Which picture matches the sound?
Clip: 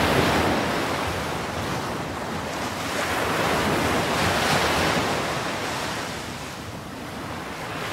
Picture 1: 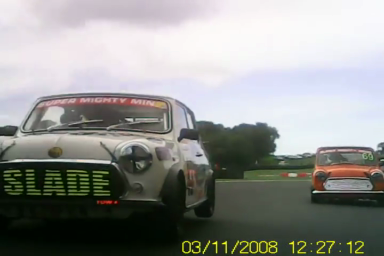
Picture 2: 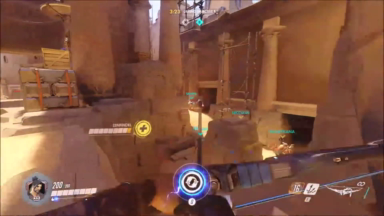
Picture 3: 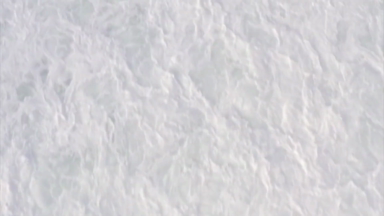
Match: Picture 3